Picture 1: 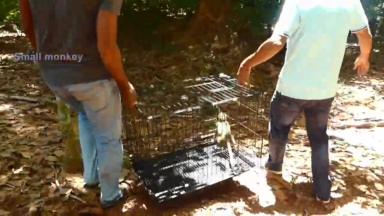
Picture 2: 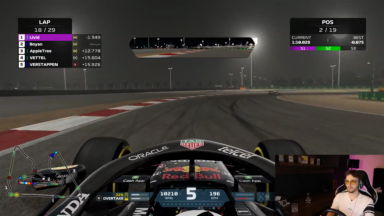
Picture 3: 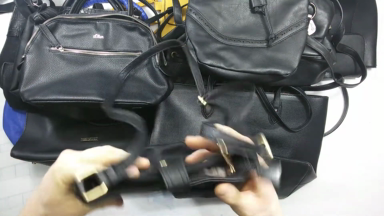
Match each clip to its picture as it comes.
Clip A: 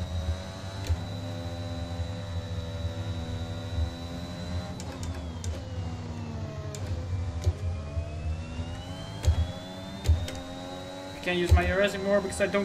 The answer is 2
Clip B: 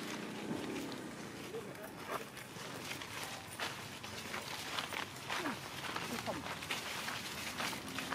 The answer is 1